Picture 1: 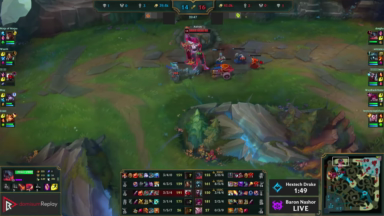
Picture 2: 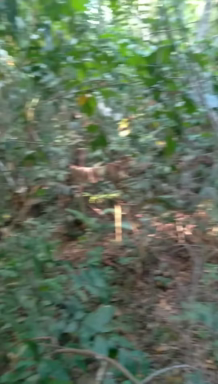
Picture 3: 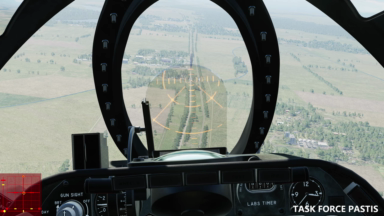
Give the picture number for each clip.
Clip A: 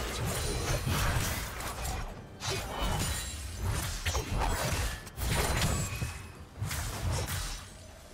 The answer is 1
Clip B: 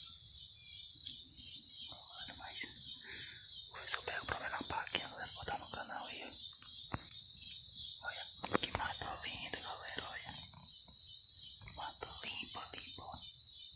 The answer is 2